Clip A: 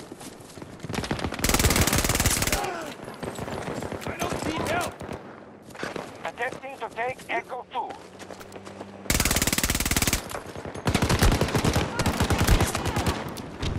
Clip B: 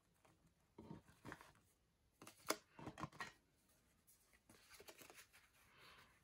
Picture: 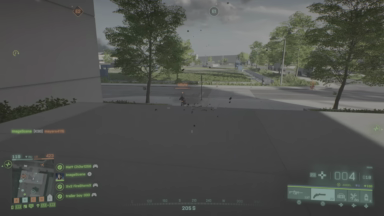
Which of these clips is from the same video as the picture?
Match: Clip A